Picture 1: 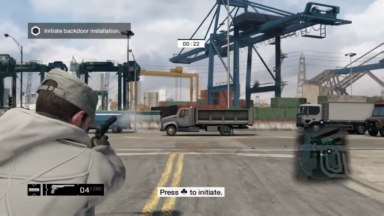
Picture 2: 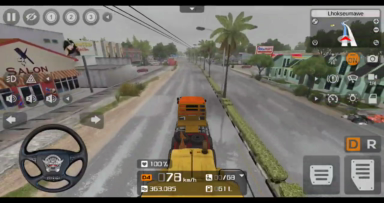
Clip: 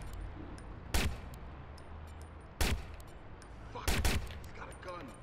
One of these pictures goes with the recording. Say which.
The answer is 1